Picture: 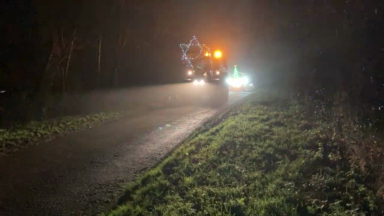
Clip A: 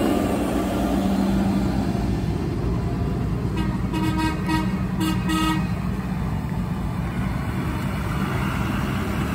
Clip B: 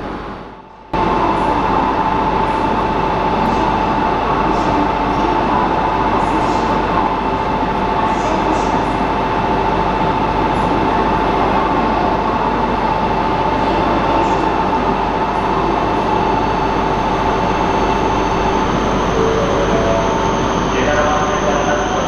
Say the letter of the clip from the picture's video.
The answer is A